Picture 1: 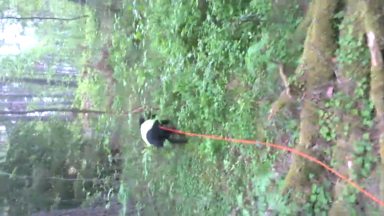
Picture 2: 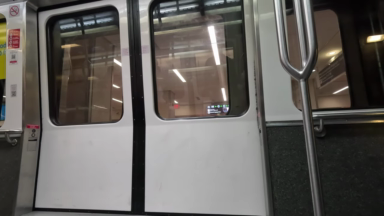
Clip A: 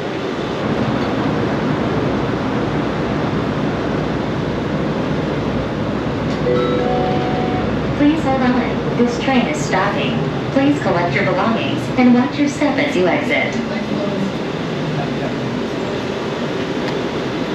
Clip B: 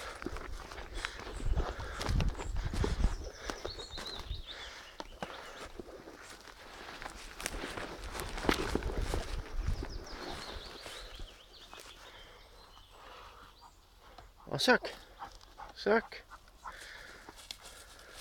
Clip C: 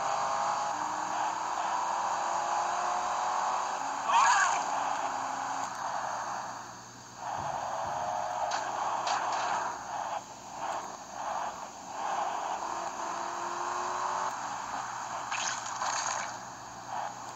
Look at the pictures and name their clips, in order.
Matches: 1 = B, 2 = A